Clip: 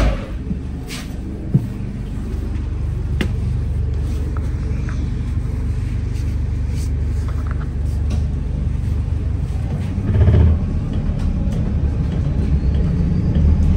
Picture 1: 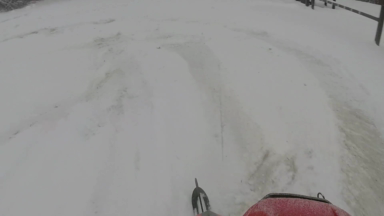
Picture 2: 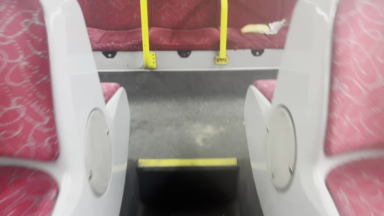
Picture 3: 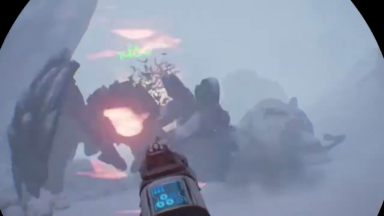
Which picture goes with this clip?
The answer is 2